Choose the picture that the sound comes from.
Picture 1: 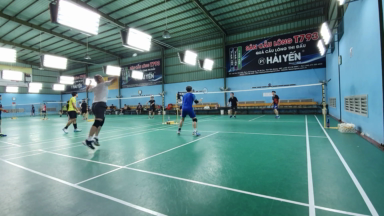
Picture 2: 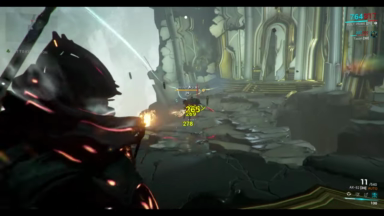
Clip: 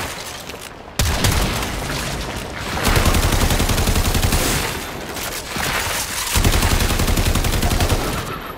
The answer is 2